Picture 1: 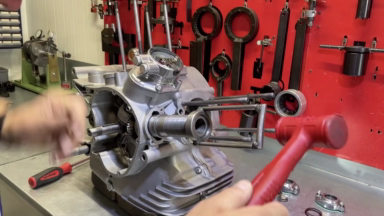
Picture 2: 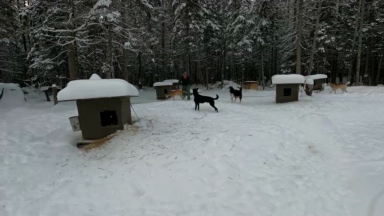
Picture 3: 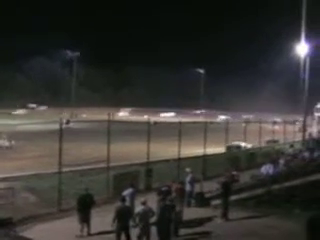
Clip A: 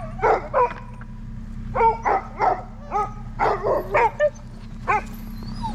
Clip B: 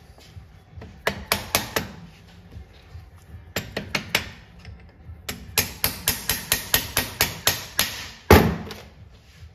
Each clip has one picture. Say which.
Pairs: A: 2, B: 1